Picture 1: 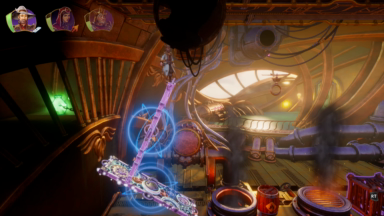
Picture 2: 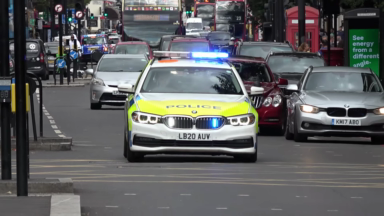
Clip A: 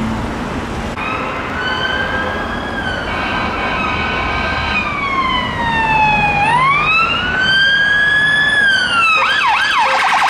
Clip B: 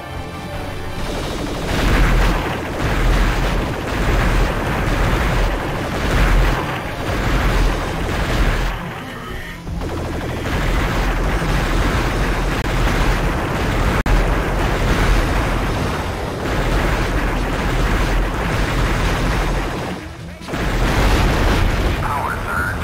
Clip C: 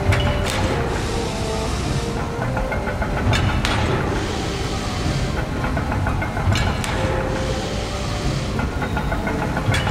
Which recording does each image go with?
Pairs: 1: C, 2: A